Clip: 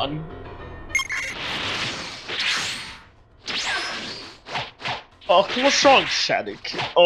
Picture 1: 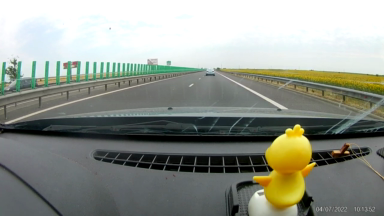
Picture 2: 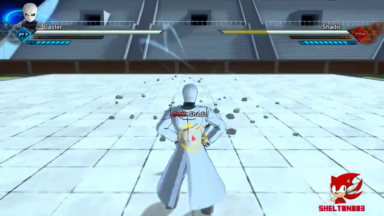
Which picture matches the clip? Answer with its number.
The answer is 2